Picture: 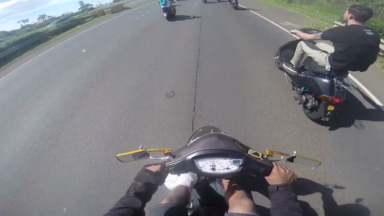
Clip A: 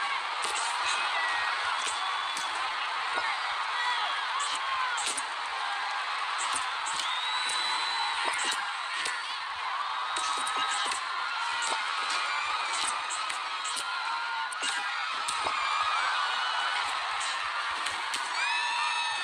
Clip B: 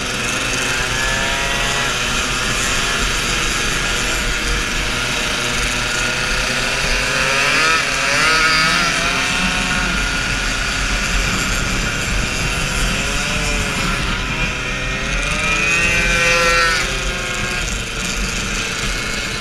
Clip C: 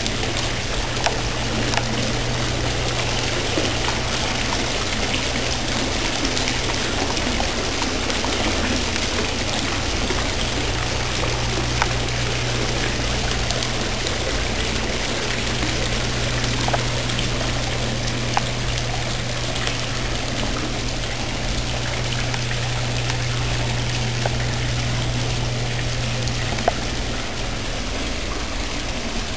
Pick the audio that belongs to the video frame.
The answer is B